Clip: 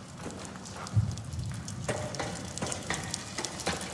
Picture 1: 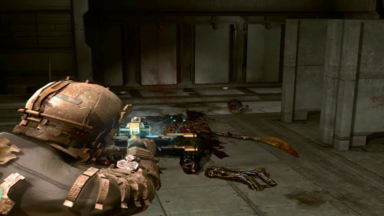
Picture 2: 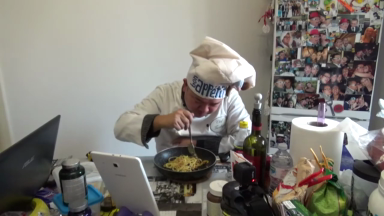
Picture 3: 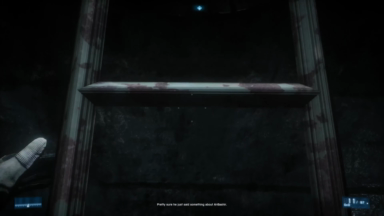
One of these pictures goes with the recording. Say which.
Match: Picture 3